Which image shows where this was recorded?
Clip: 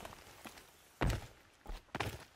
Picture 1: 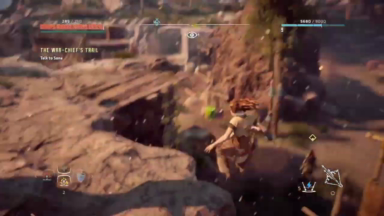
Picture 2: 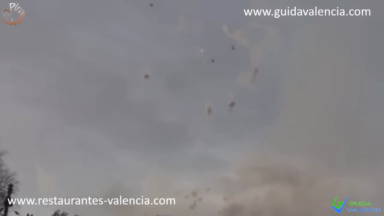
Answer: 1